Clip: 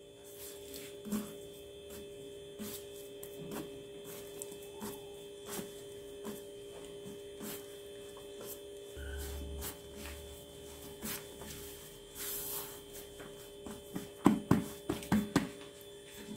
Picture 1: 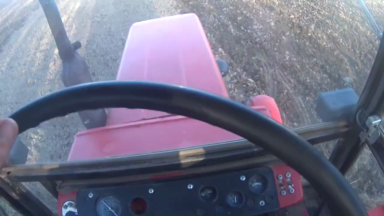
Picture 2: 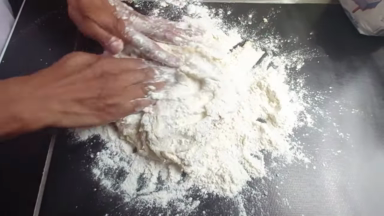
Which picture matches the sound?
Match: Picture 2